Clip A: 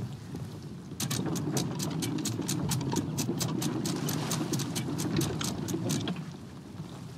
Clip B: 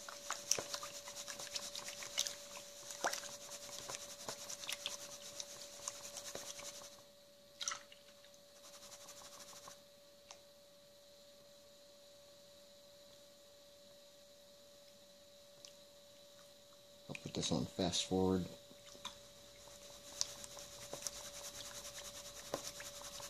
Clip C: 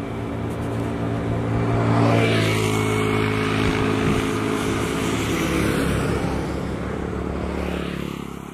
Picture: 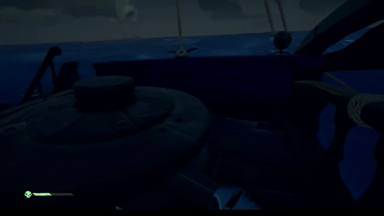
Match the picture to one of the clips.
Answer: A